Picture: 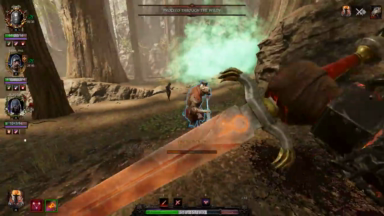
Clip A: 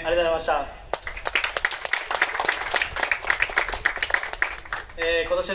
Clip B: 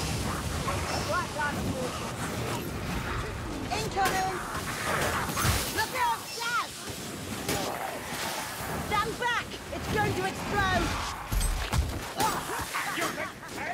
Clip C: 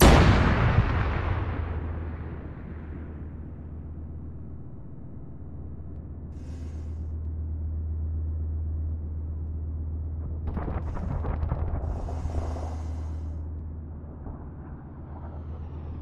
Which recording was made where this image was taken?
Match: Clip B